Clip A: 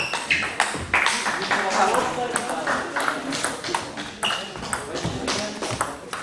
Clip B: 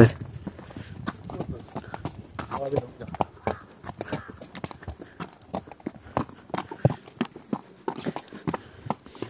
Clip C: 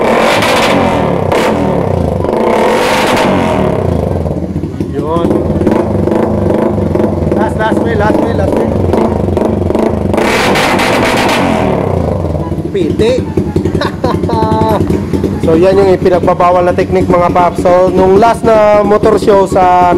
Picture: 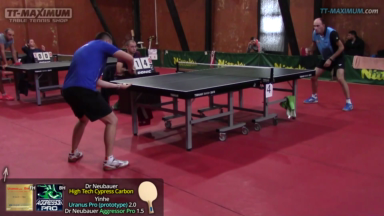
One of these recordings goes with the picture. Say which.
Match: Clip A